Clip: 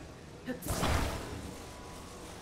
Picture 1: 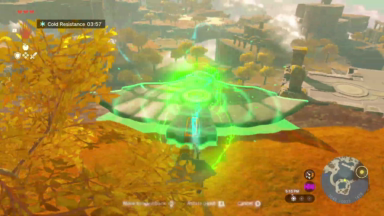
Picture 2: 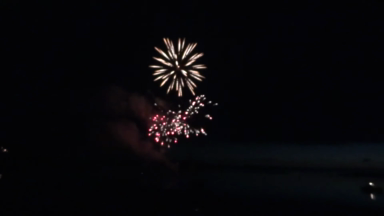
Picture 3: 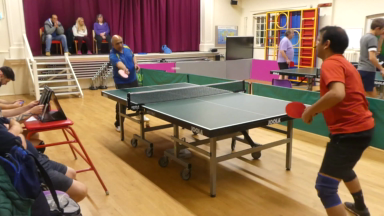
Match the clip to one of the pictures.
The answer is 1